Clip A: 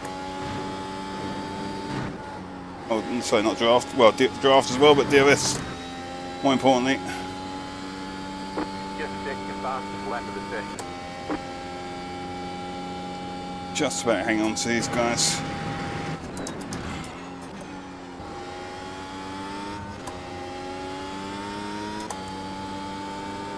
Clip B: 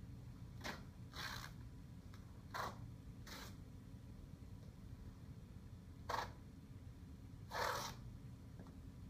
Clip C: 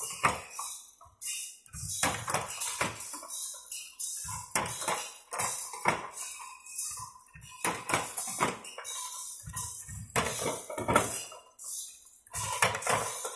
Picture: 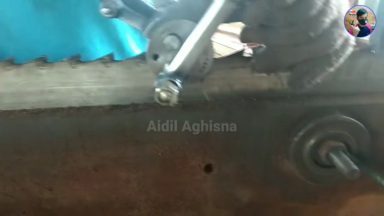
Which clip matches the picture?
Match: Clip C